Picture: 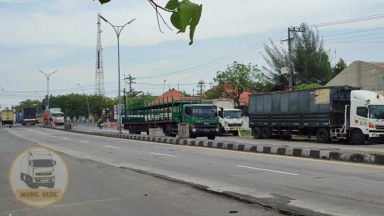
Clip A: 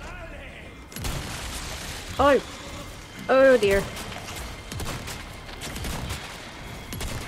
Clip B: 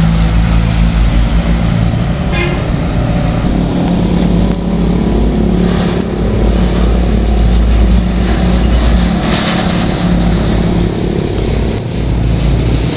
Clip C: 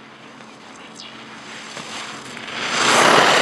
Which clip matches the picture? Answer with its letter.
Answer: B